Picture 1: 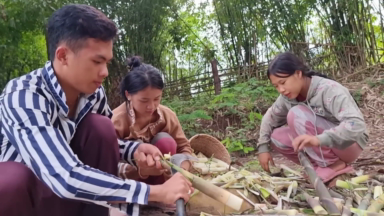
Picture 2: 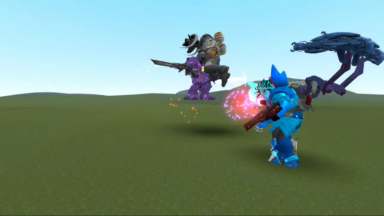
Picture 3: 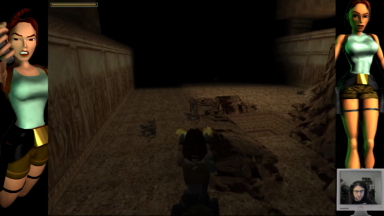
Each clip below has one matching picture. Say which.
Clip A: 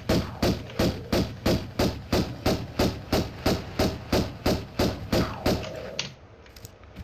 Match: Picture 3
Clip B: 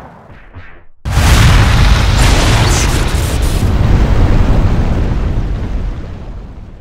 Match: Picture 2